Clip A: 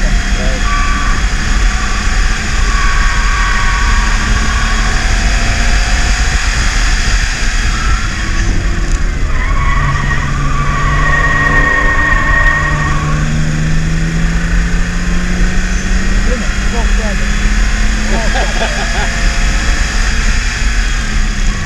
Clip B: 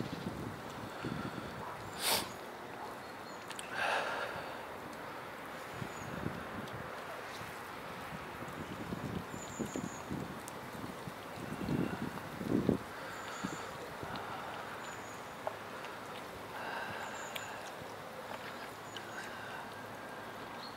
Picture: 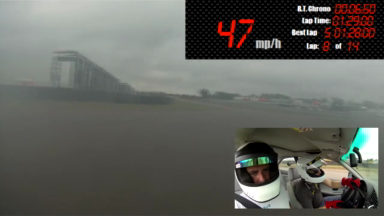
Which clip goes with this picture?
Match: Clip A